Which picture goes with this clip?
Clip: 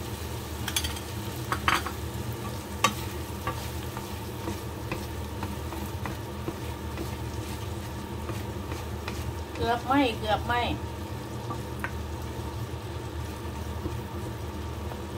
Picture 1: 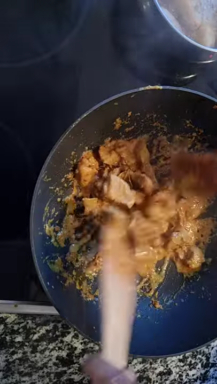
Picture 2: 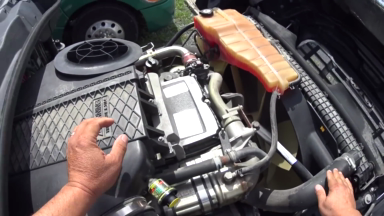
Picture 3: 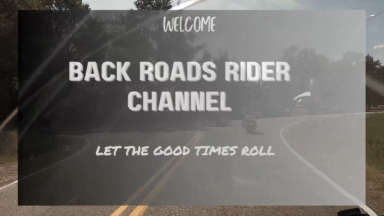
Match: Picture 1